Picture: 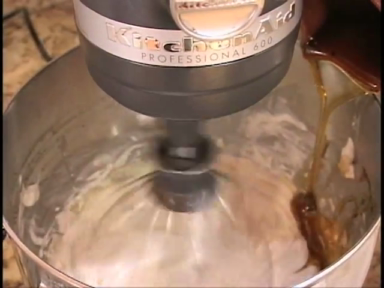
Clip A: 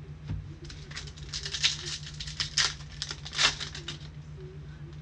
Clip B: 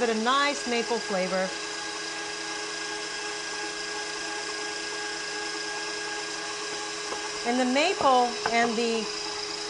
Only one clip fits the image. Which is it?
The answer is B